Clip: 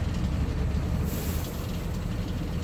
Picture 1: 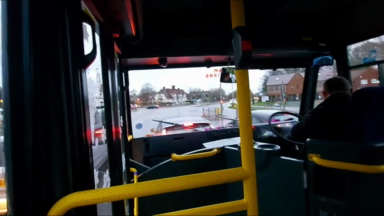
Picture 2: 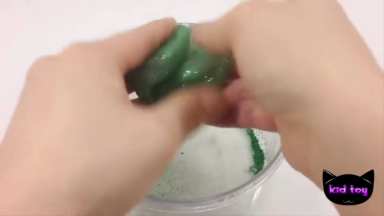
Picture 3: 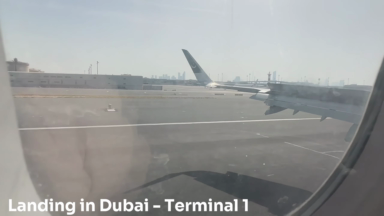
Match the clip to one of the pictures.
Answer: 1